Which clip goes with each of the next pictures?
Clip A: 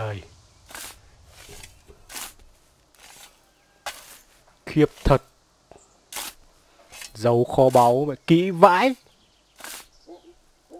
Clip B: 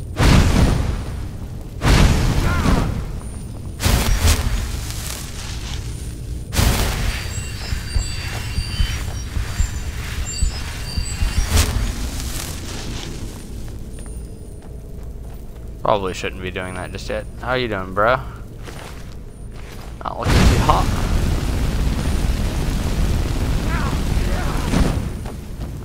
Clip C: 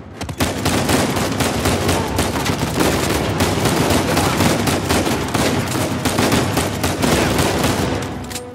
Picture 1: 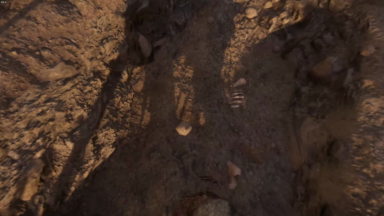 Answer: A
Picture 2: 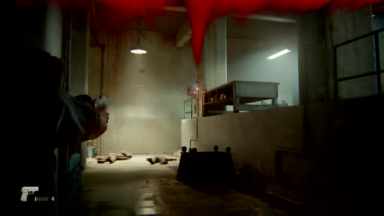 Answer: C